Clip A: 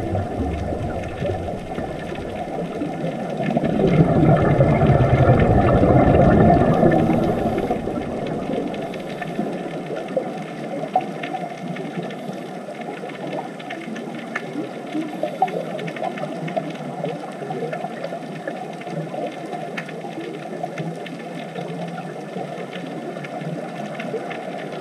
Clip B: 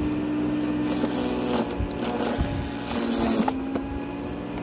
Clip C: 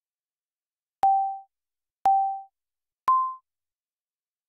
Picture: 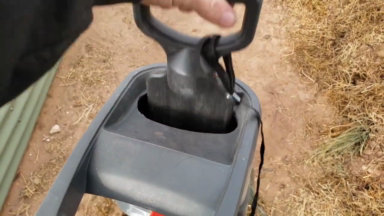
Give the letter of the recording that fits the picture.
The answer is B